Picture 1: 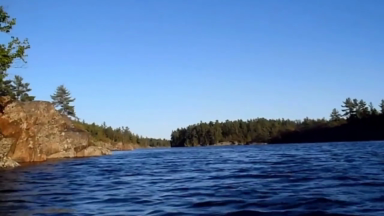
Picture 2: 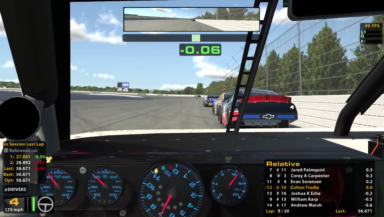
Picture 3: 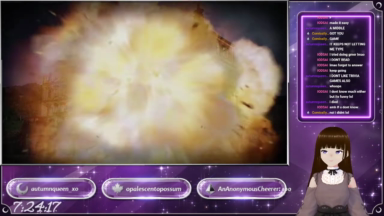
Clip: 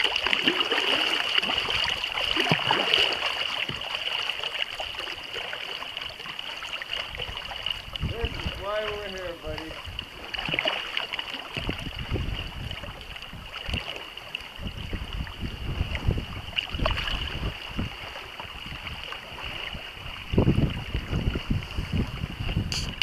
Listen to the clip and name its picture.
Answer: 1